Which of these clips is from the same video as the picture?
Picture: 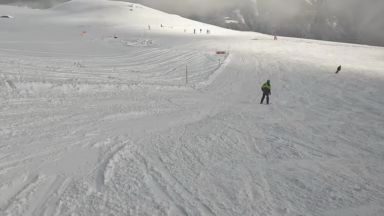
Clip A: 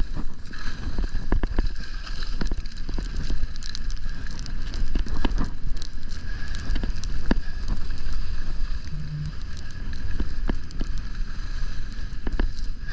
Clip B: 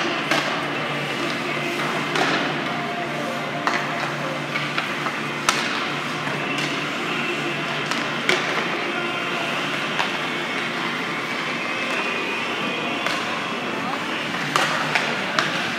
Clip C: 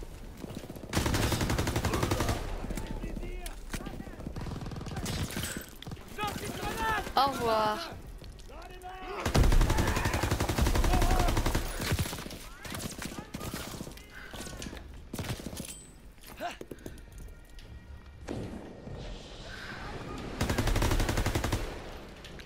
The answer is A